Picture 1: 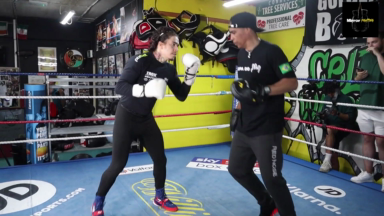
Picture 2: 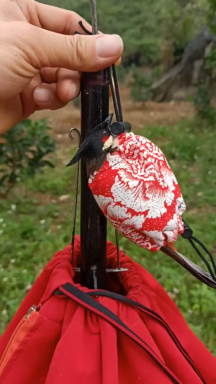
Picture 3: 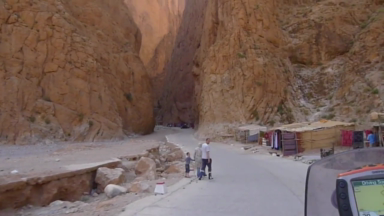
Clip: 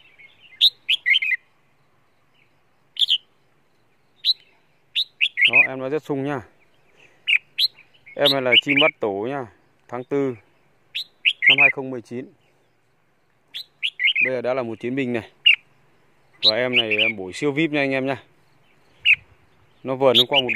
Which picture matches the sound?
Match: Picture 2